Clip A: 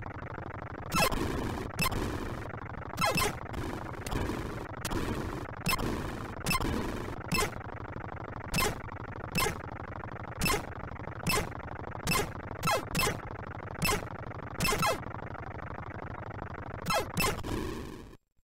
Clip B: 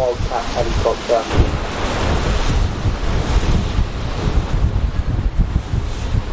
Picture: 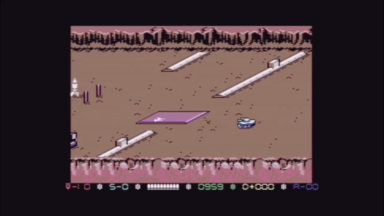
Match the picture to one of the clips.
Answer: A